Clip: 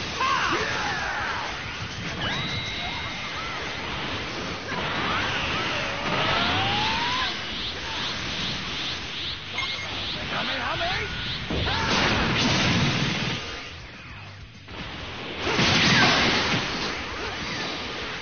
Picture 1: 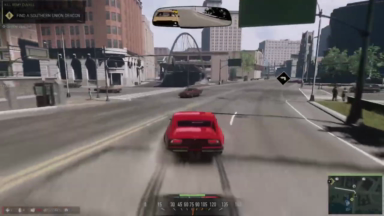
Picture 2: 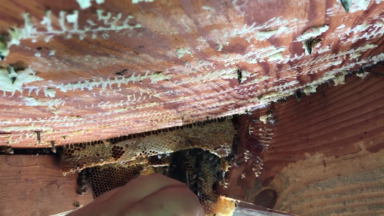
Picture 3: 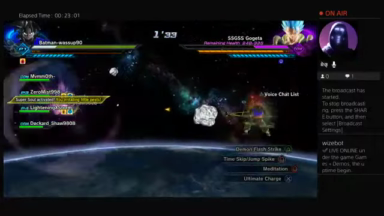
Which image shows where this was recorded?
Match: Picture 3